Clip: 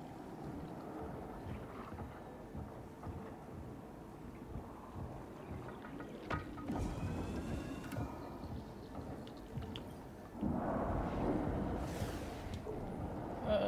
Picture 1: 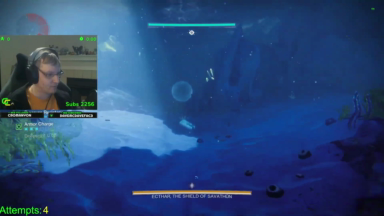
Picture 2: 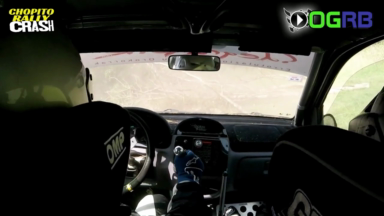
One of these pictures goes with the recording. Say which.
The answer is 1